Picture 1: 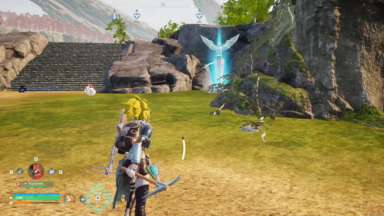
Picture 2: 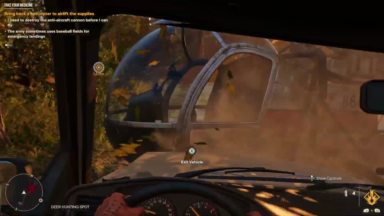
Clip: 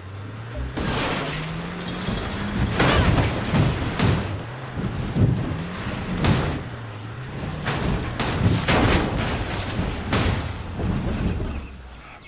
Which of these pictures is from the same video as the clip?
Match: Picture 2